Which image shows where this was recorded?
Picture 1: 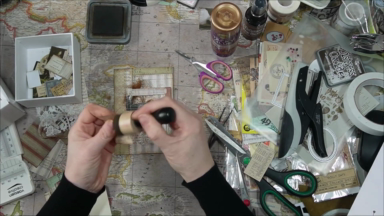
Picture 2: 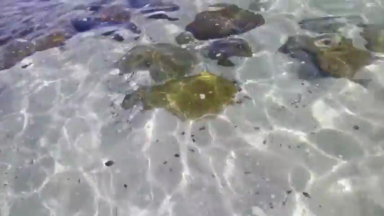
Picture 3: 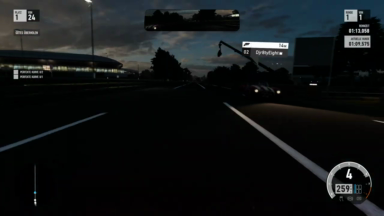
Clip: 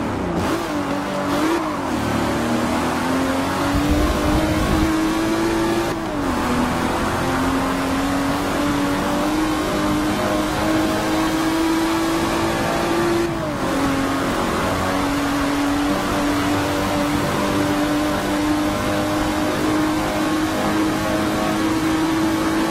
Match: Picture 3